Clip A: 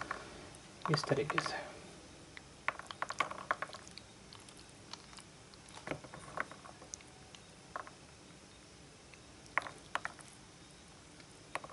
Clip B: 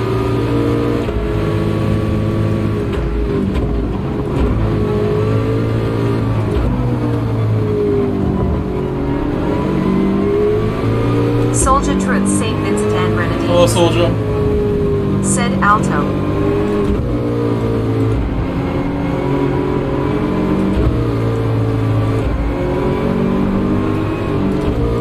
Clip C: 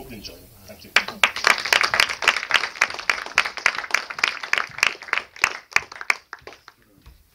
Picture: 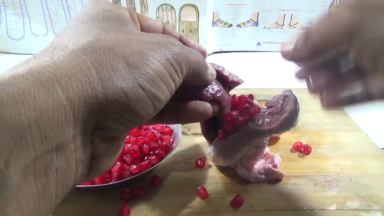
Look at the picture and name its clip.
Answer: A